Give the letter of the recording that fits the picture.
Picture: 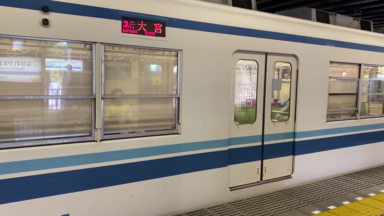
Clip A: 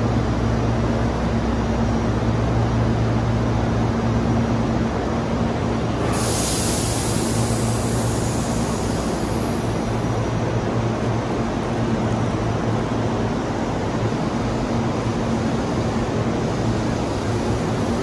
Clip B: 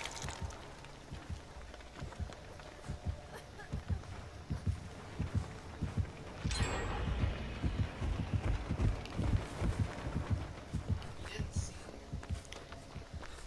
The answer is A